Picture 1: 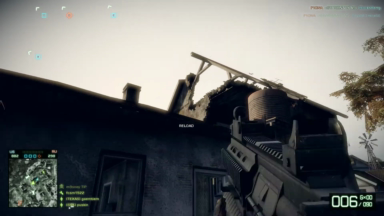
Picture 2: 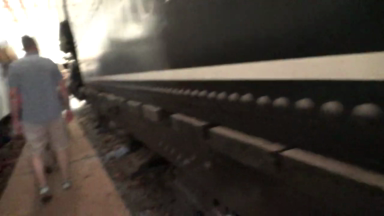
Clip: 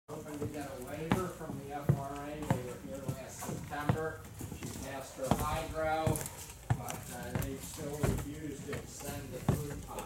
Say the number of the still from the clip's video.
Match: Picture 2